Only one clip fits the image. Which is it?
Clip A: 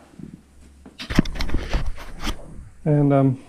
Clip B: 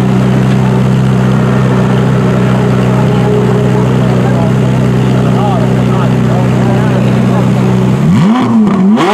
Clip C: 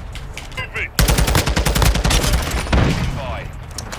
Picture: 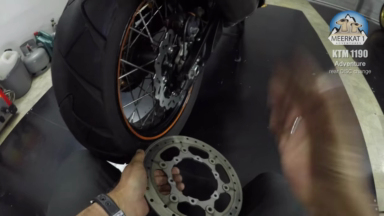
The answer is A